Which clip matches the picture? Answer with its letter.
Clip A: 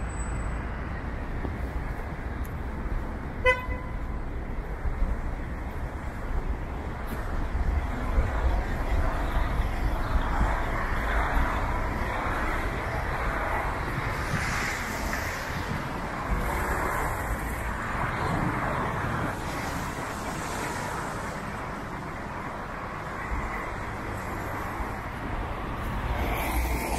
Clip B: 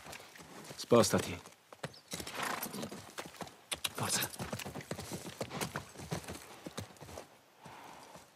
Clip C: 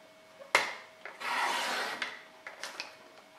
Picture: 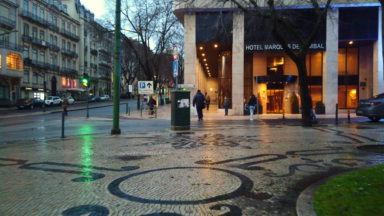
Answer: A